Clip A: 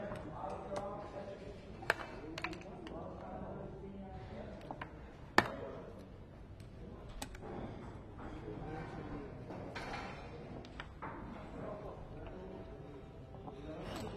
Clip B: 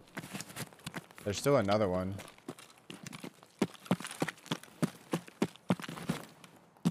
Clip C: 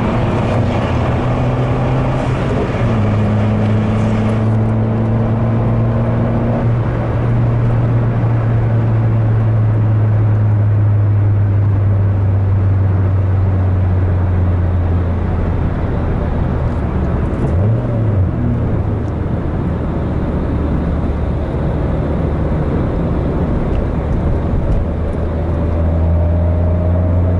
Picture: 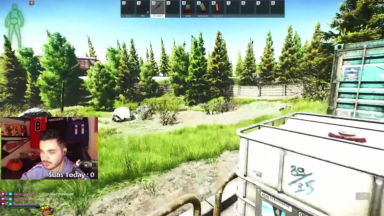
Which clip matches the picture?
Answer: B